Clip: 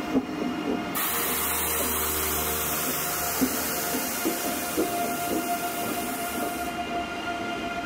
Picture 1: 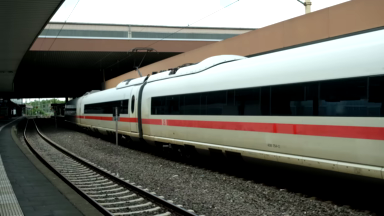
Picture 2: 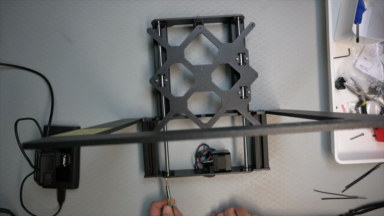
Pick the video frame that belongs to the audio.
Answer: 1